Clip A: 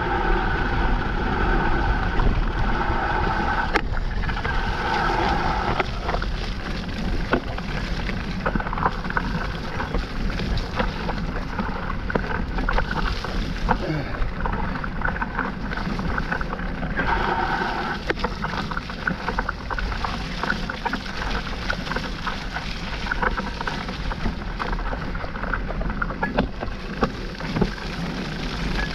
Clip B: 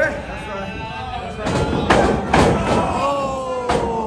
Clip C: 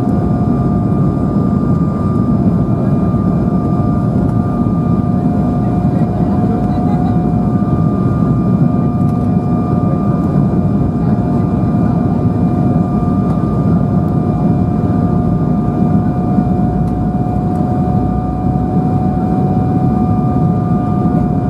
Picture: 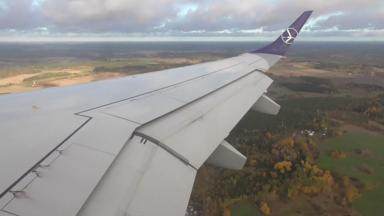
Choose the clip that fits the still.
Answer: C